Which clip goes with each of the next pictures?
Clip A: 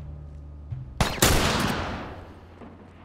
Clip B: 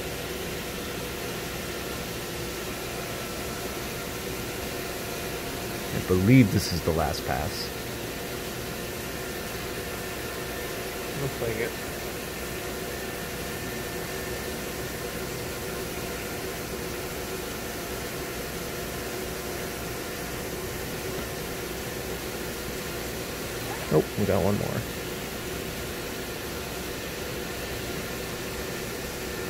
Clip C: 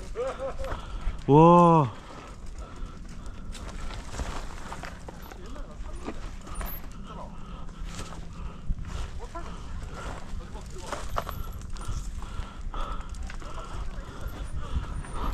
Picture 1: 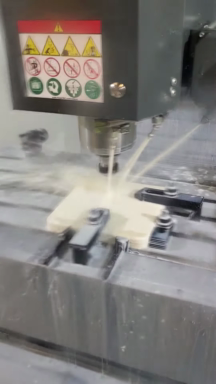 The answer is B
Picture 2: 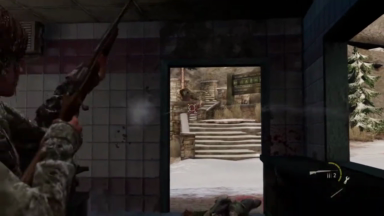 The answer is A